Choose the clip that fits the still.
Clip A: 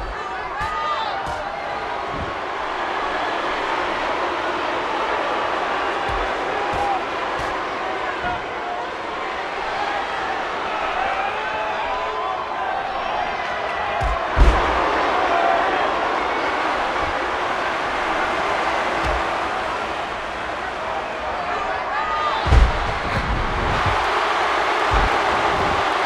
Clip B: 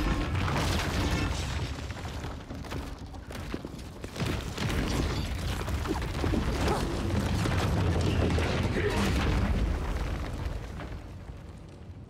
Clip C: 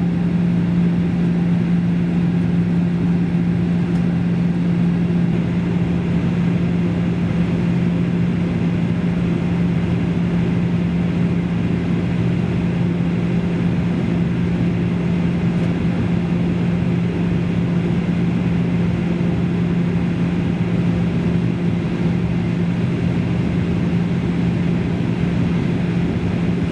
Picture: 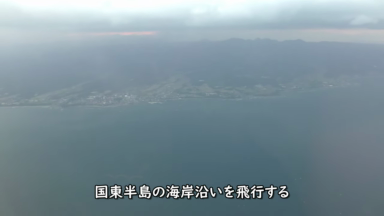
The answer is C